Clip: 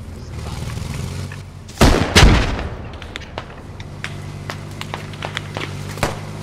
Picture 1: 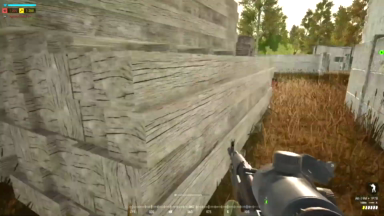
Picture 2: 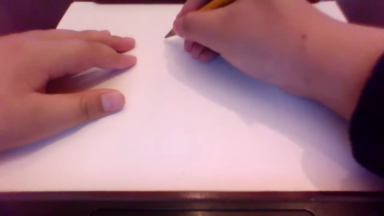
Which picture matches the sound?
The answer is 1